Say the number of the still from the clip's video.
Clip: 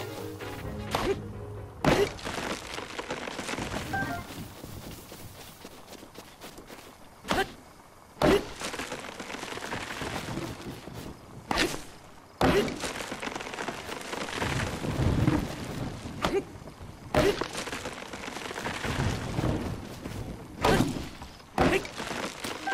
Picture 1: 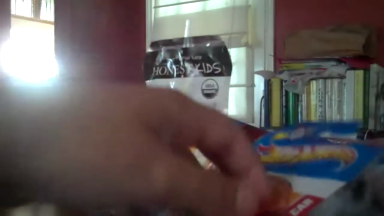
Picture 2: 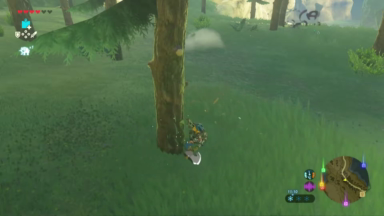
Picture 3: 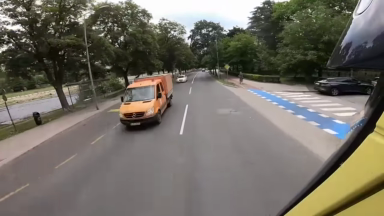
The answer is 2